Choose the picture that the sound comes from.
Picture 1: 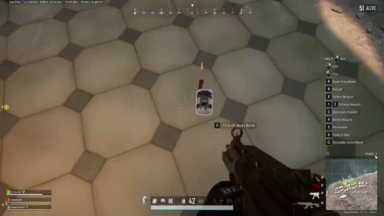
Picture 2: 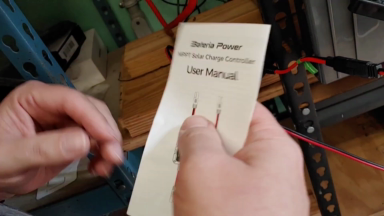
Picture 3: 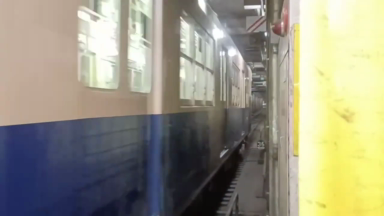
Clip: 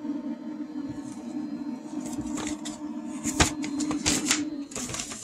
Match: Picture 2